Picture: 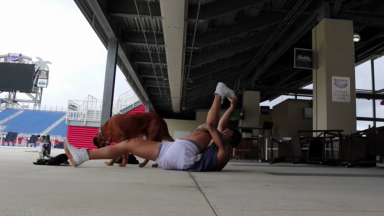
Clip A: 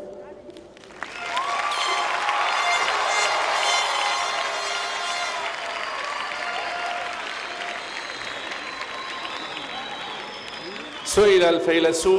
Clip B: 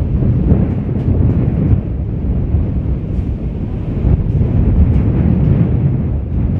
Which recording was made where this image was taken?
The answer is B